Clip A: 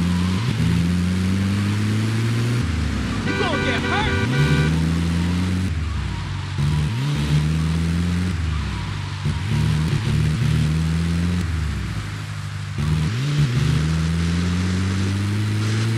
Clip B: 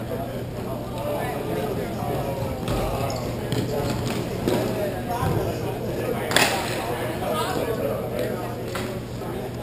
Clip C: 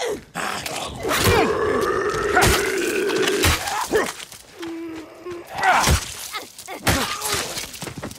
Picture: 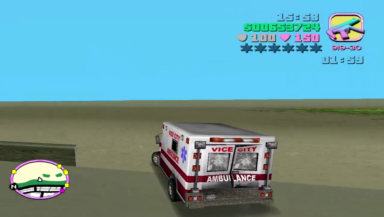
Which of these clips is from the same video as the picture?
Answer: A